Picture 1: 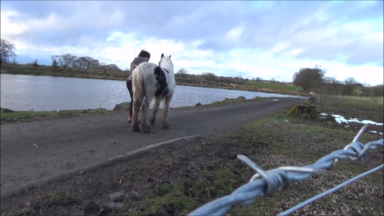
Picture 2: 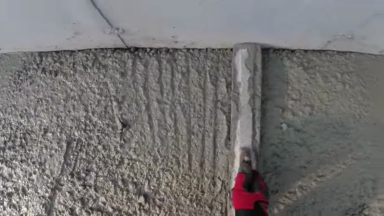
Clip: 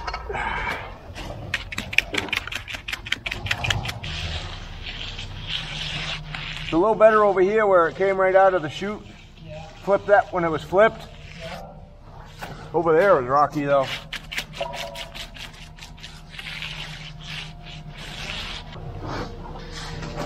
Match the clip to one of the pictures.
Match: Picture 2